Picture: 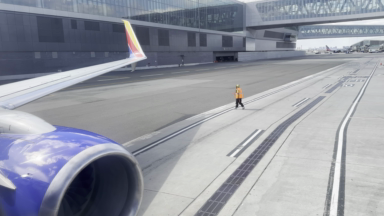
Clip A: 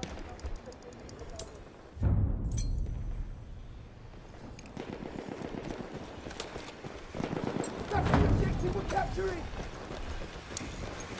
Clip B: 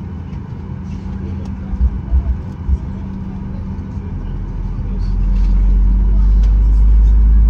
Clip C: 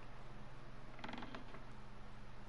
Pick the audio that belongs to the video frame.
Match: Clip B